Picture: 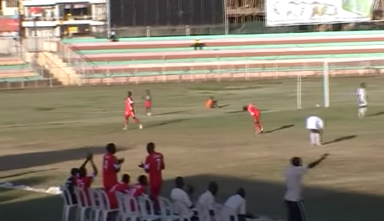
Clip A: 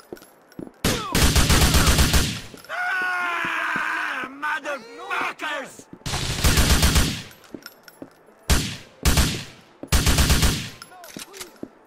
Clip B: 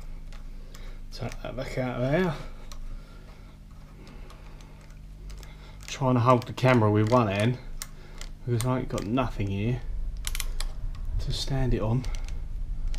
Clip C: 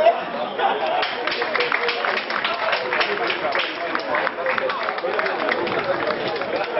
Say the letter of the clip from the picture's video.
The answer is C